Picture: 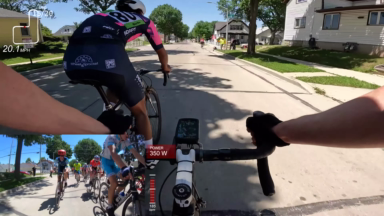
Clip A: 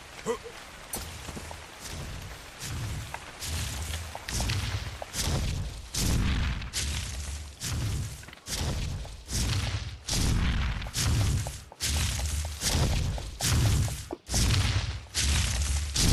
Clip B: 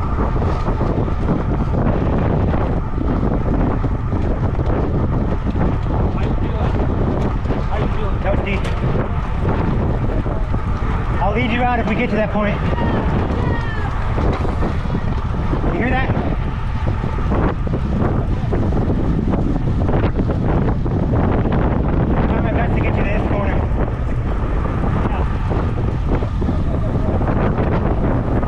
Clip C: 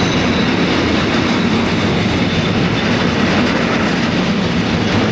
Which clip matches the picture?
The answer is B